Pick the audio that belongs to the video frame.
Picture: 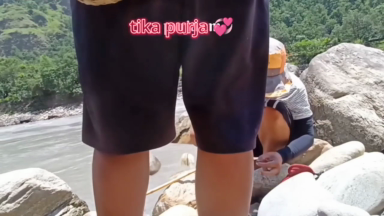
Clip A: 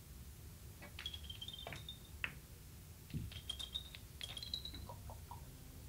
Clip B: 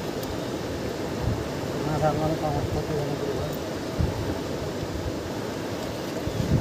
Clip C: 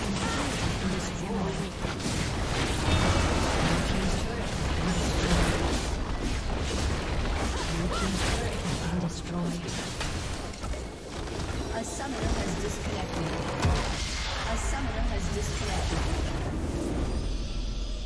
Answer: B